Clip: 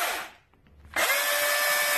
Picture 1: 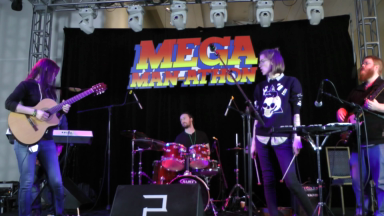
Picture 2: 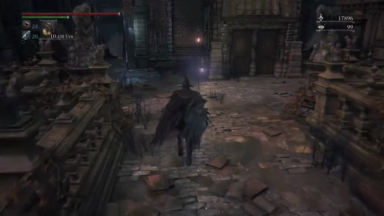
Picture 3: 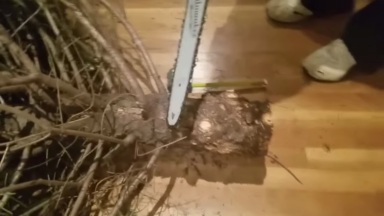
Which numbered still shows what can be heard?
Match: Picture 3